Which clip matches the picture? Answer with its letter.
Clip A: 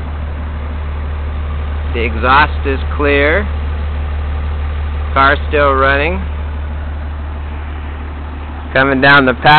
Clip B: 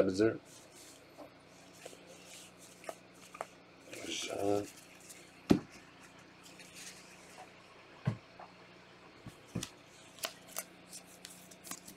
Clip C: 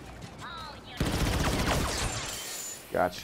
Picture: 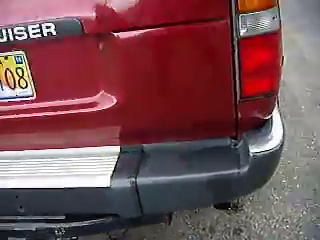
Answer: A